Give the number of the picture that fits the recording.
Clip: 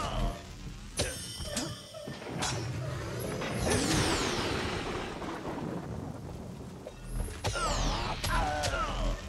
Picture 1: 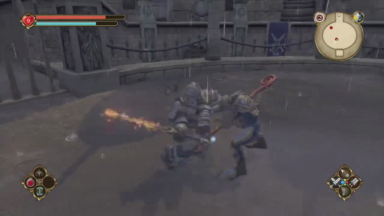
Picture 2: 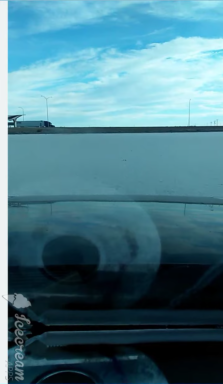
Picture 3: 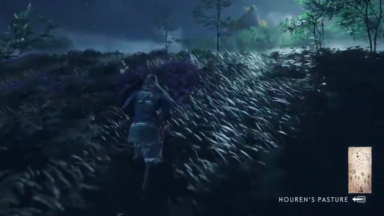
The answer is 1